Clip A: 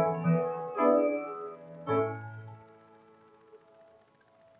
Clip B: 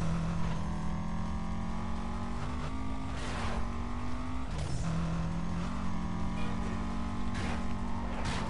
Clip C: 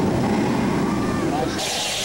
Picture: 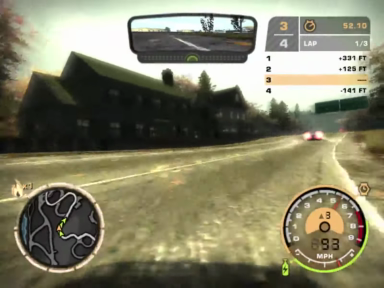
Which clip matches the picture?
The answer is B